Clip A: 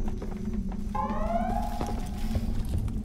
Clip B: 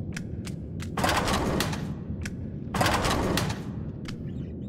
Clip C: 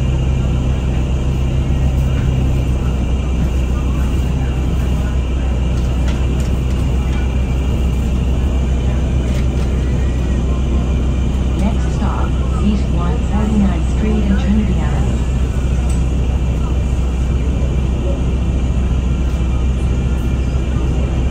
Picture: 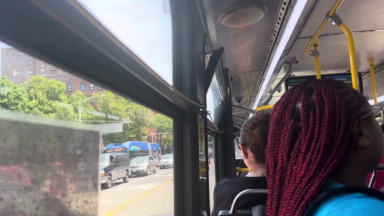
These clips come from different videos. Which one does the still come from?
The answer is C